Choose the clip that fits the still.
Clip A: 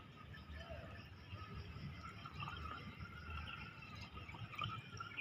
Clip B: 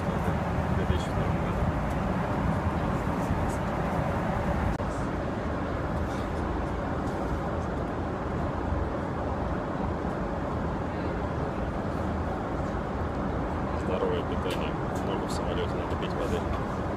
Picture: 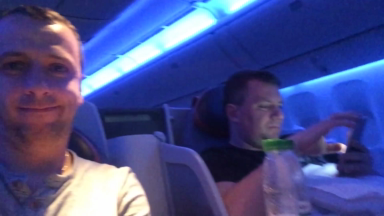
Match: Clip B